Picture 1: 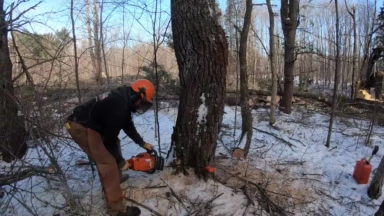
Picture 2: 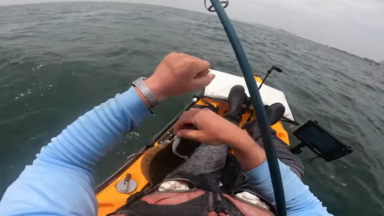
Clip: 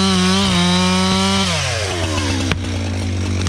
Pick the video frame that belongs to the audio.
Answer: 1